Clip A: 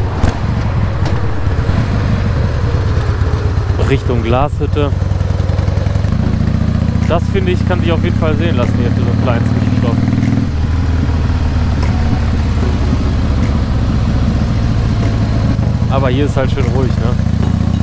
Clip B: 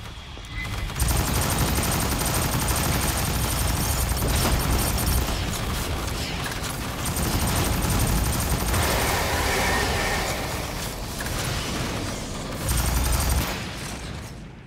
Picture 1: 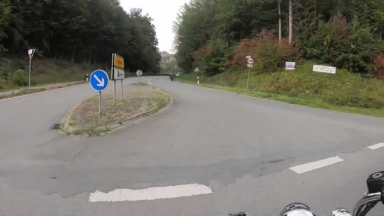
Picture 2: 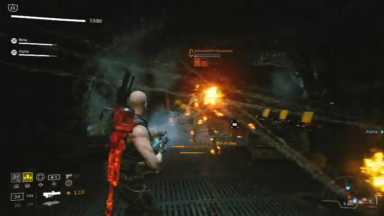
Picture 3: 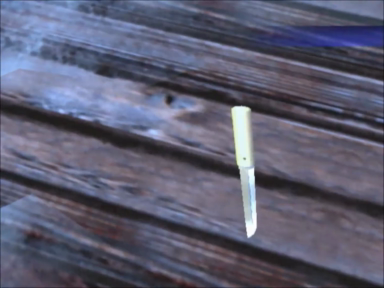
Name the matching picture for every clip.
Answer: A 1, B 2